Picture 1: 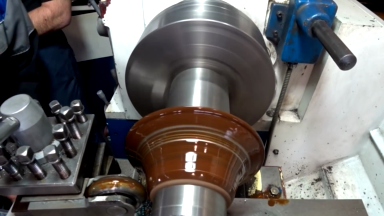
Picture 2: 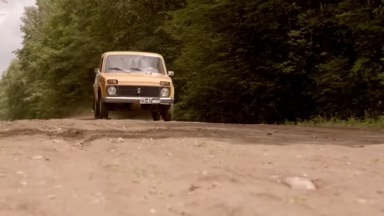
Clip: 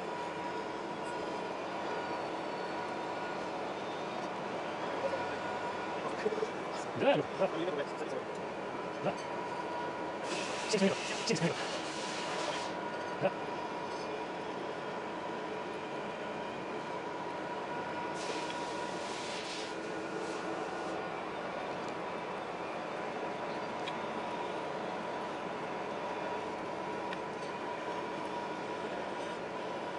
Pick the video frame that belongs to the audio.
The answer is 1